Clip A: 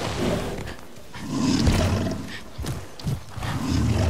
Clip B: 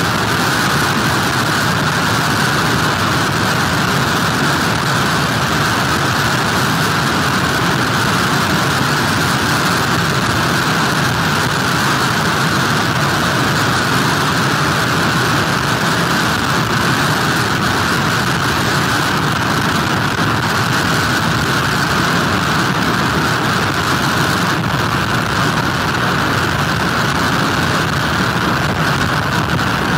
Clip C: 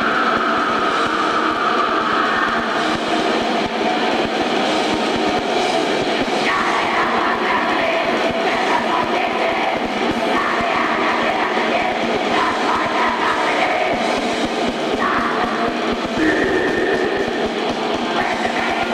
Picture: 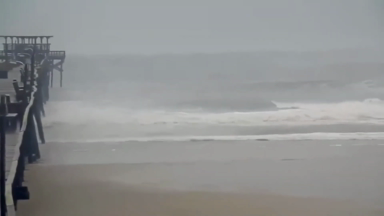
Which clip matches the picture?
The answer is B